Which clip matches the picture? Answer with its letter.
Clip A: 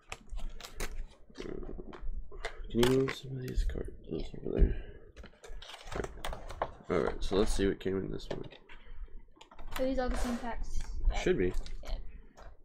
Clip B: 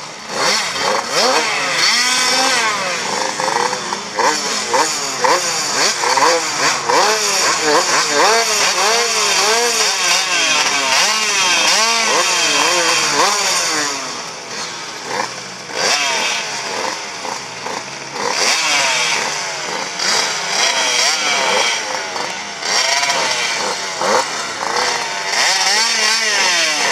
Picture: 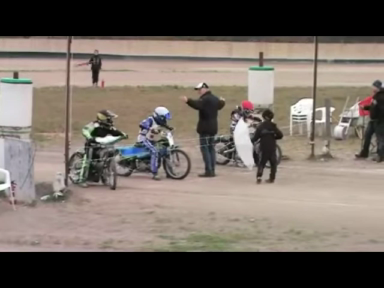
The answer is B